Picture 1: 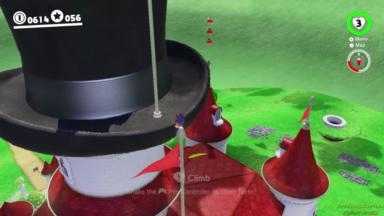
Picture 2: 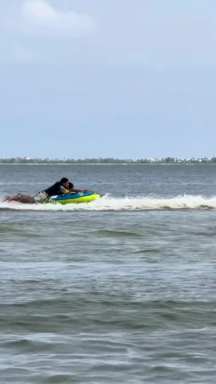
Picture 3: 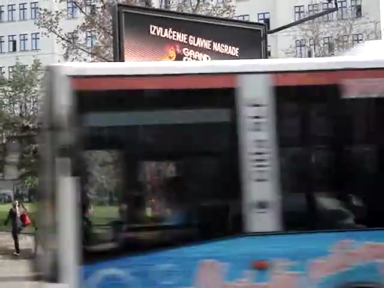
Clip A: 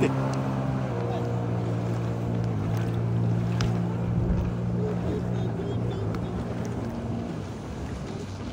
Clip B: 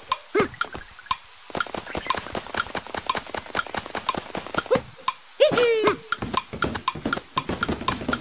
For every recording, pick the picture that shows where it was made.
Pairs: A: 2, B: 1